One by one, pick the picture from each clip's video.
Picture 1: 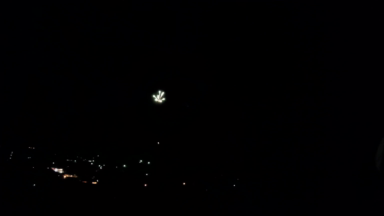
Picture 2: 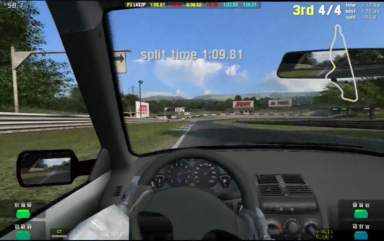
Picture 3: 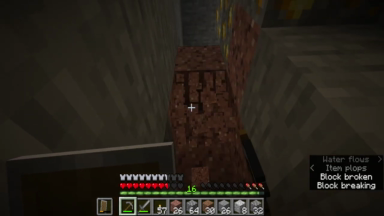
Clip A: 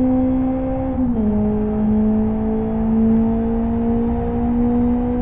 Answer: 2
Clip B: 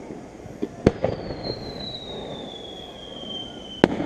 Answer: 1